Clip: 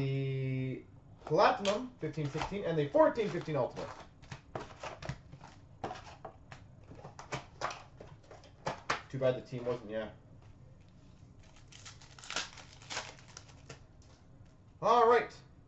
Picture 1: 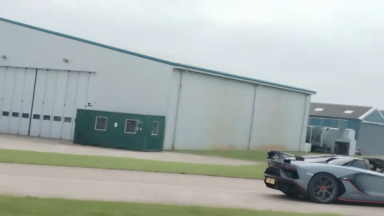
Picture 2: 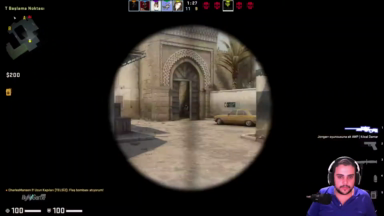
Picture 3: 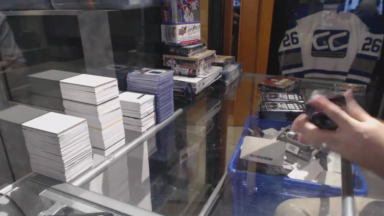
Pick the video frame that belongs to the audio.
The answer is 3